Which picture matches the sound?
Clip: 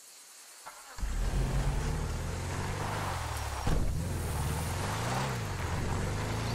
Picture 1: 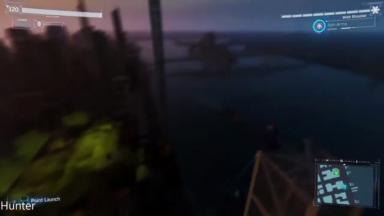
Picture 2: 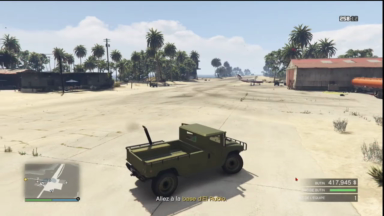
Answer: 2